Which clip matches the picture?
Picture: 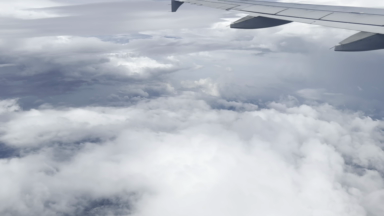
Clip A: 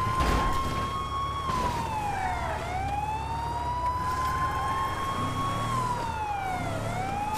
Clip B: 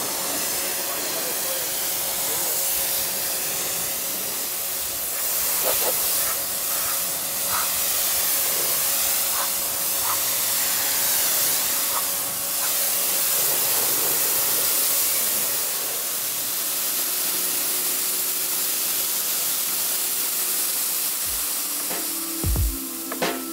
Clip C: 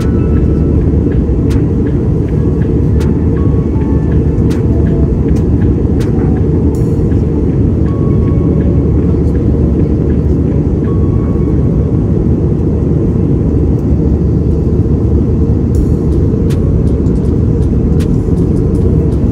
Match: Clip C